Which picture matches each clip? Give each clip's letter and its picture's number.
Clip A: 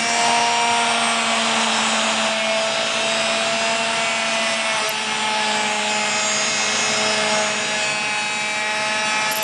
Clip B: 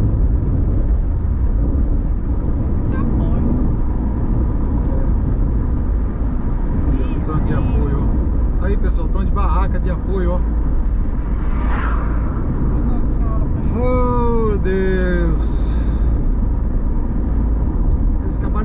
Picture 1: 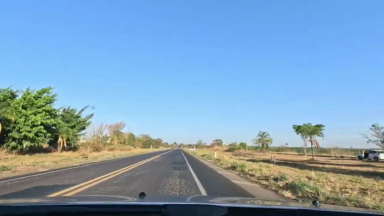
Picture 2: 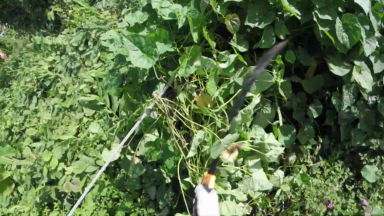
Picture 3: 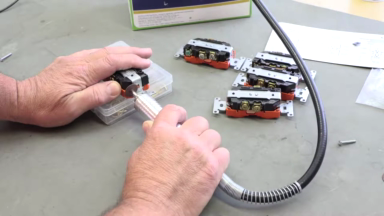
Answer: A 3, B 1